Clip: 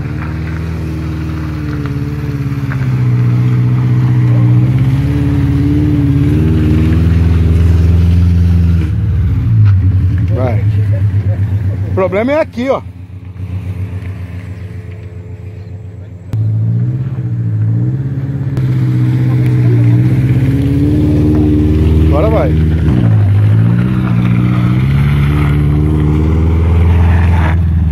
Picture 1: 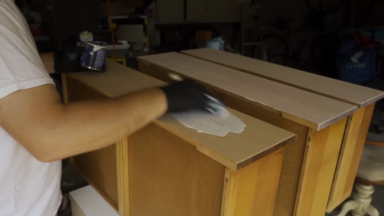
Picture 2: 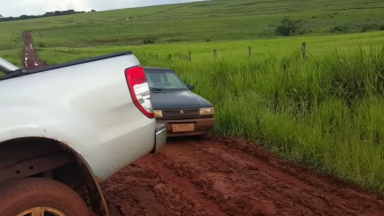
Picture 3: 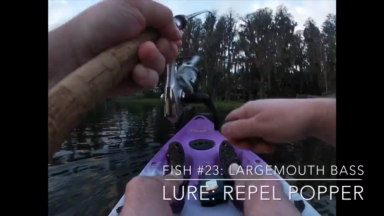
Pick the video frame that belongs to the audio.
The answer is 2